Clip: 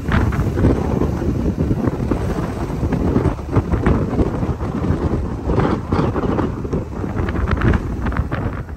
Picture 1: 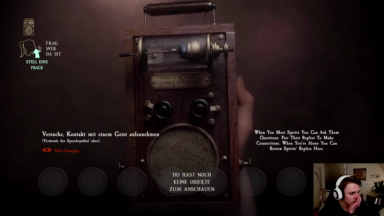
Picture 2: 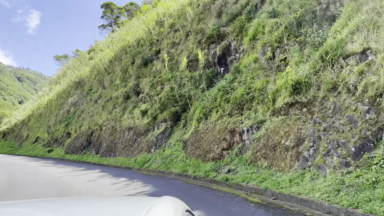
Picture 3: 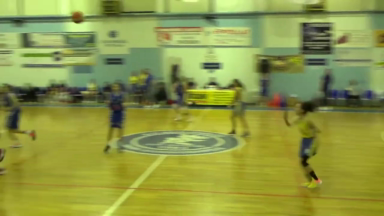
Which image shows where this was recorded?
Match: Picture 2